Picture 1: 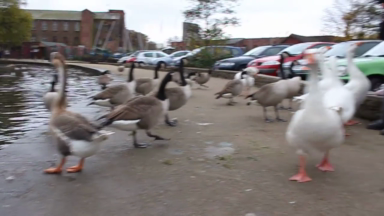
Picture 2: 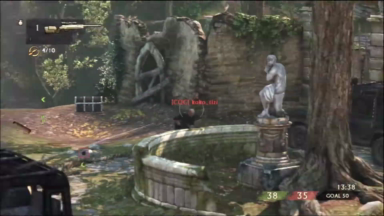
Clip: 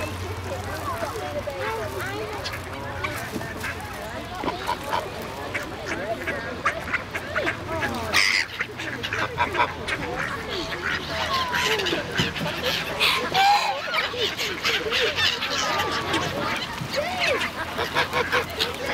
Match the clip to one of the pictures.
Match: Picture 1